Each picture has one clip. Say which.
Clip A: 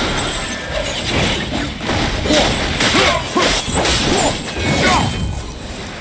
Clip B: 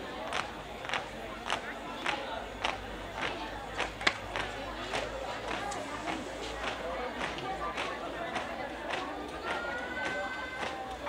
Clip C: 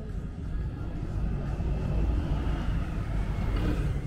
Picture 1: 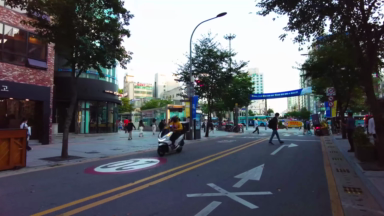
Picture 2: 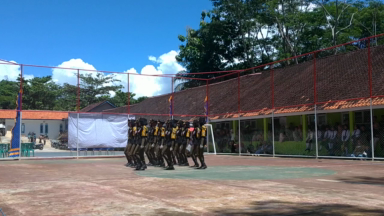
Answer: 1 C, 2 B